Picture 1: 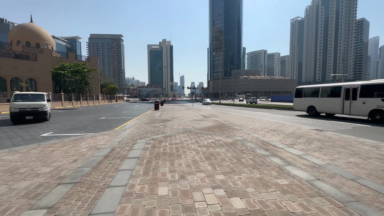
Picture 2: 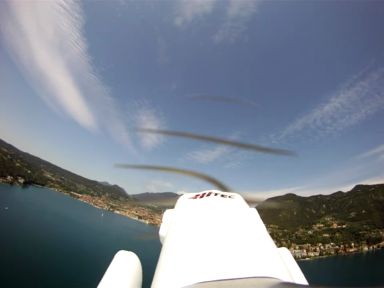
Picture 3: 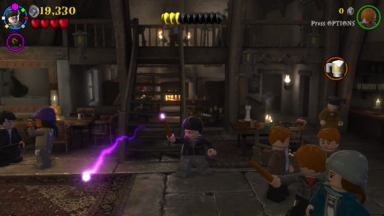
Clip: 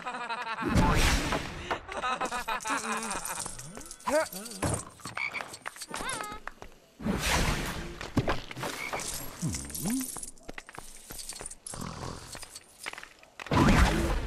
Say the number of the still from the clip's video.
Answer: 3